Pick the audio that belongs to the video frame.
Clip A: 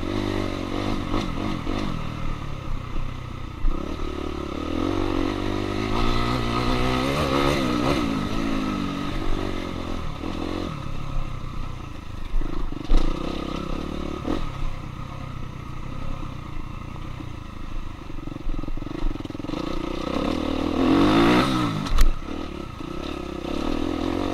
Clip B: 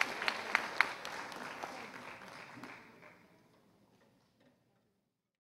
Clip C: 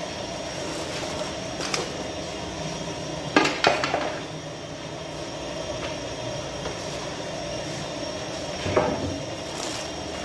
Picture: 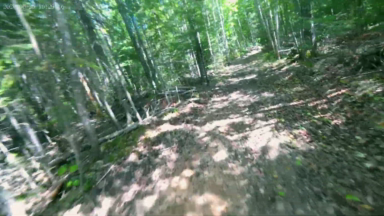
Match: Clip A